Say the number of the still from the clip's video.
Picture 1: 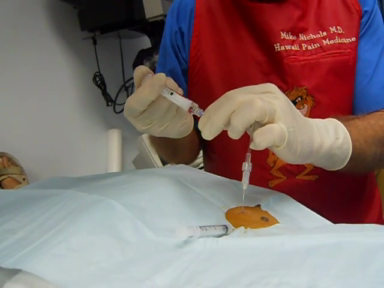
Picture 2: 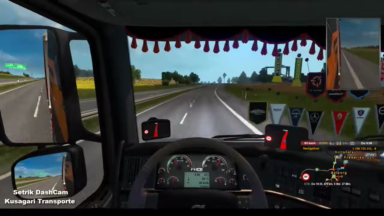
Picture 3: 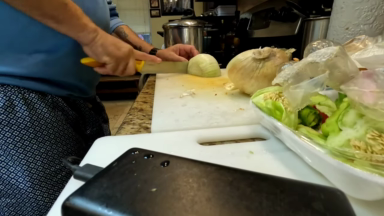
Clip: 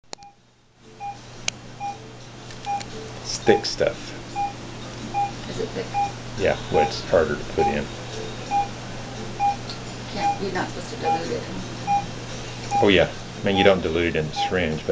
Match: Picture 1